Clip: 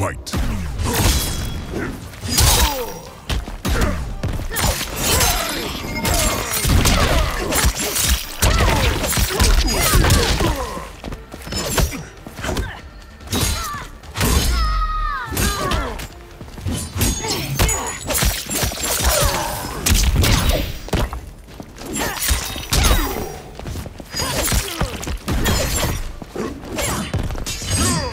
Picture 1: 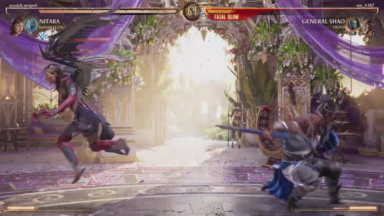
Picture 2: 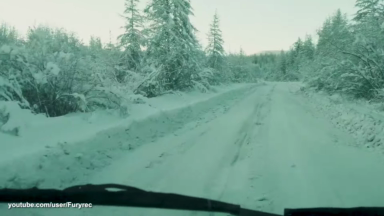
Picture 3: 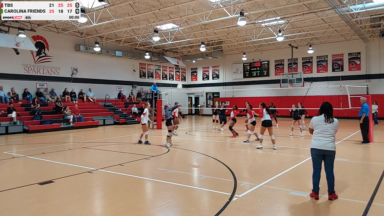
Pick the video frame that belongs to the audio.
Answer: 1